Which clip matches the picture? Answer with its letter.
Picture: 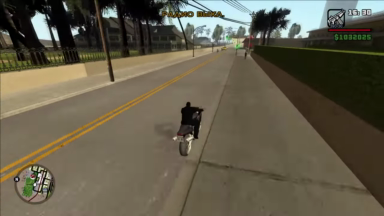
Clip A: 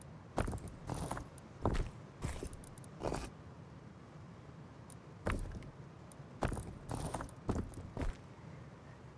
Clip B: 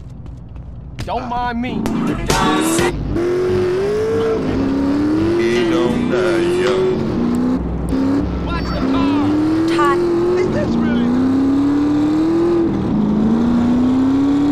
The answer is B